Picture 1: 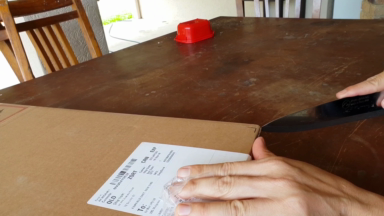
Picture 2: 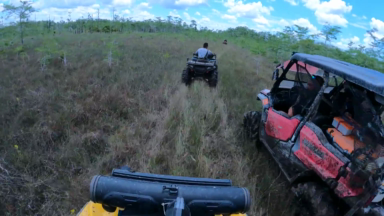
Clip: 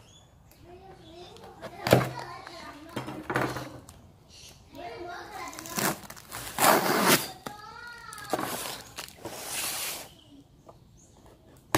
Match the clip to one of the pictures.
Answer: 1